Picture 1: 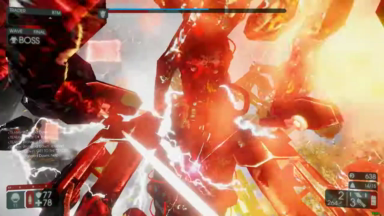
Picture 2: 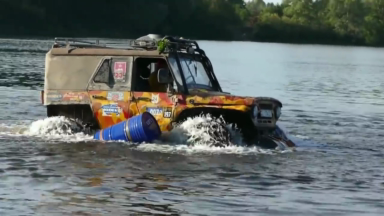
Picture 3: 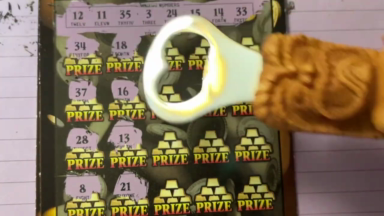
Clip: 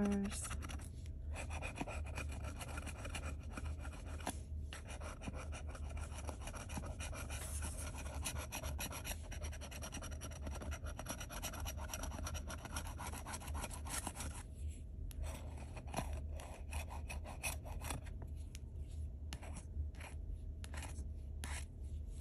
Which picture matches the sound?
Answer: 3